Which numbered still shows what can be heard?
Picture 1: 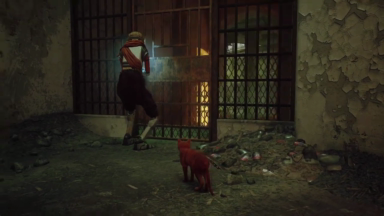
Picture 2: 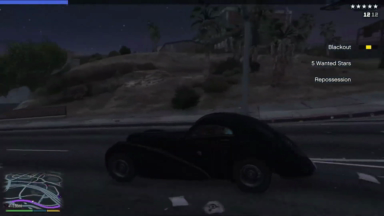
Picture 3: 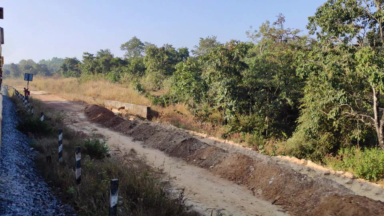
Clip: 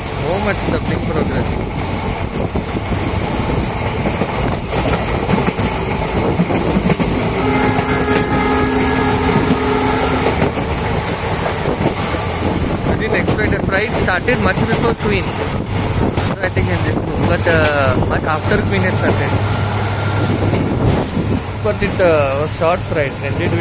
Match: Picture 3